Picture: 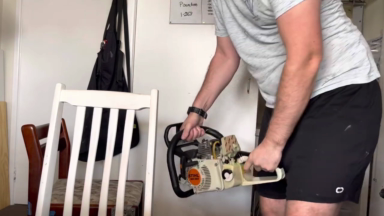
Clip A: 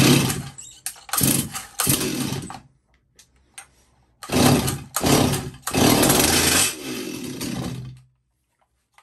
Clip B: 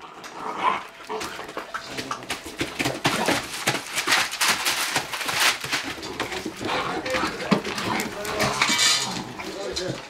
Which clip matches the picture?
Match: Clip A